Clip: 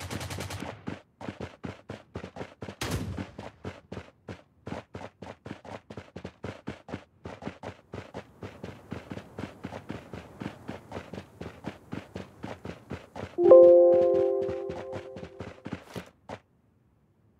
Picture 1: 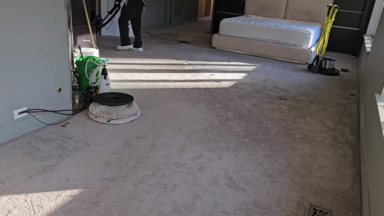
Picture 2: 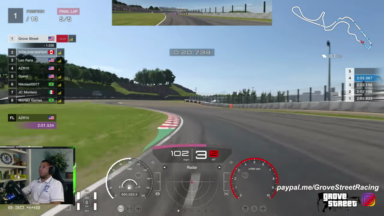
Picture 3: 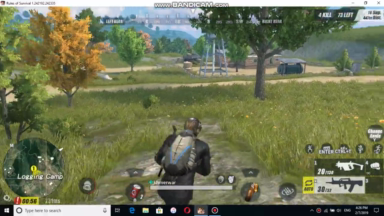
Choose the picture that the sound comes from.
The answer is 3